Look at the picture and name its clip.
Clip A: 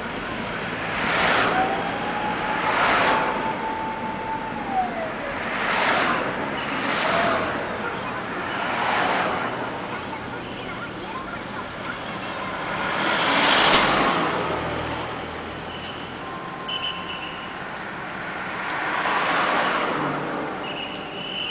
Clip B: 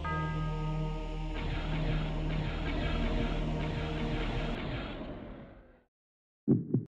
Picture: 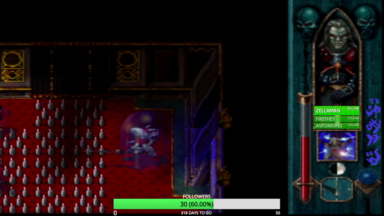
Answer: B